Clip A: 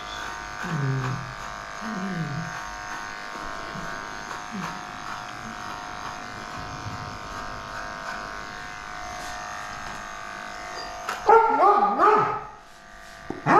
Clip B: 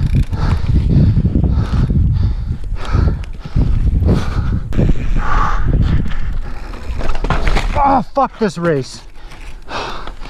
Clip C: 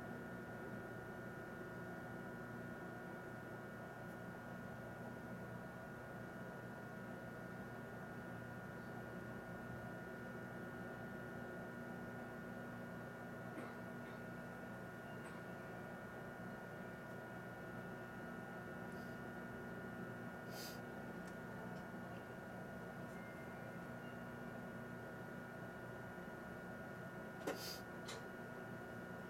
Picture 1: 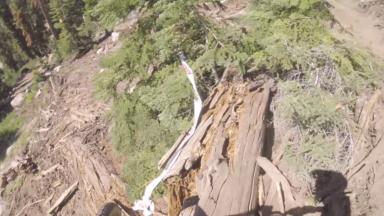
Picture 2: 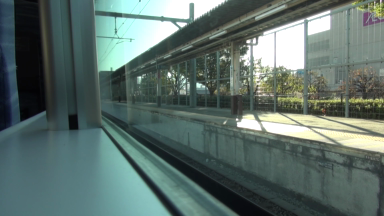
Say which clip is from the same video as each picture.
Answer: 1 B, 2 C